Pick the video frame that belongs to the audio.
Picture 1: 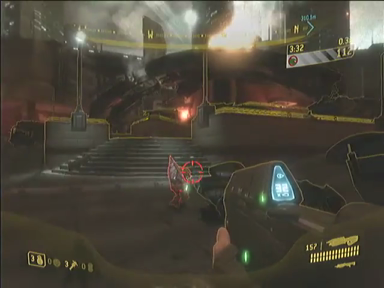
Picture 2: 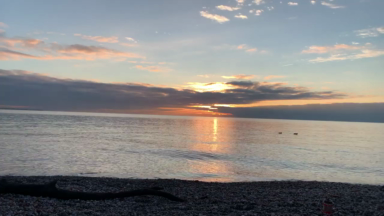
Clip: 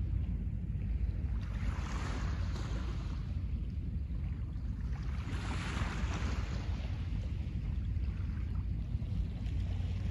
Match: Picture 2